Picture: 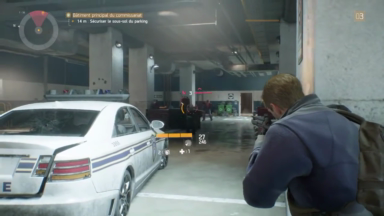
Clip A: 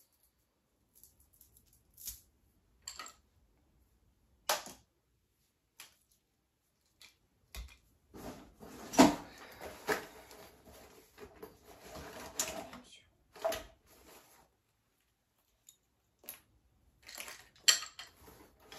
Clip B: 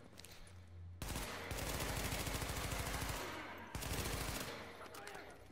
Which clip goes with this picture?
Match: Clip B